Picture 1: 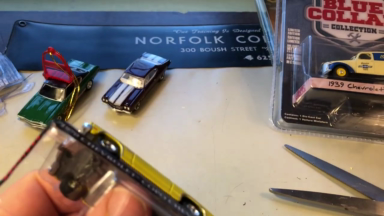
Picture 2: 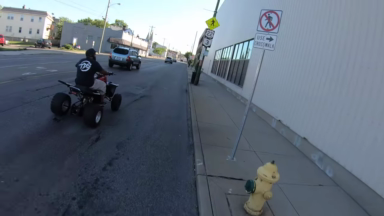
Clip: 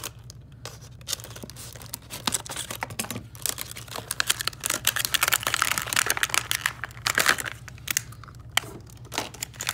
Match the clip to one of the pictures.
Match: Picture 1